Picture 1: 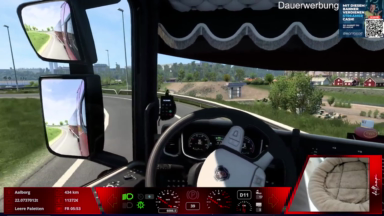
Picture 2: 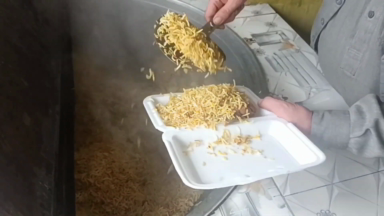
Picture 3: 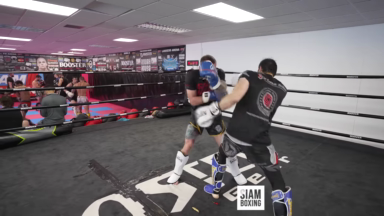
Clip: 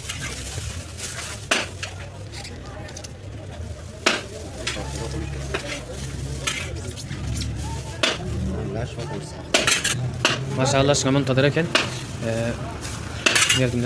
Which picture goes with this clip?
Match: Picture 2